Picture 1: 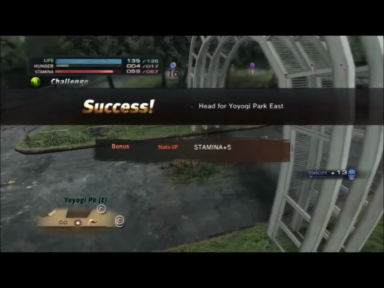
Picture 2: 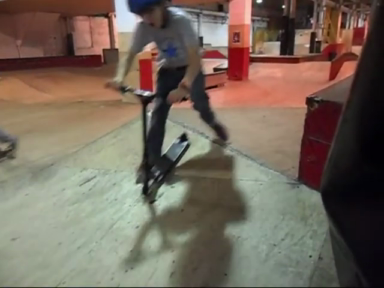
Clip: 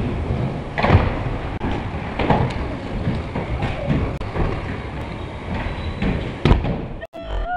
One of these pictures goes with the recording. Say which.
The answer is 2